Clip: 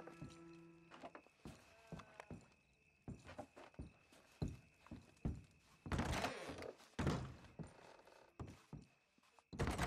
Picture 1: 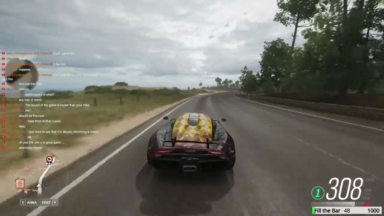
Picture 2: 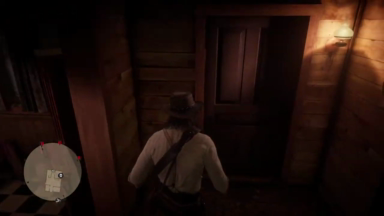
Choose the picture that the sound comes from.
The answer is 2